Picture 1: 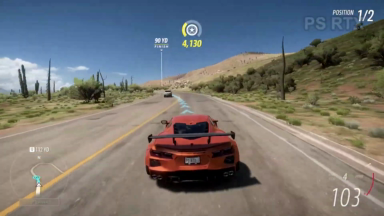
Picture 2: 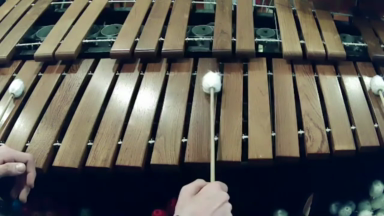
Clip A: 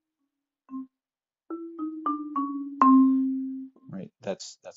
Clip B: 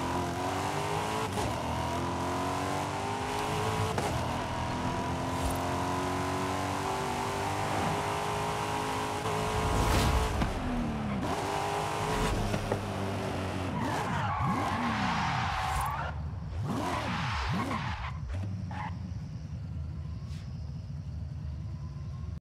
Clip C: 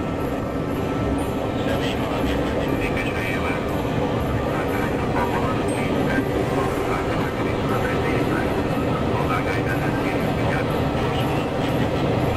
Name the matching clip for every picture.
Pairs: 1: B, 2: A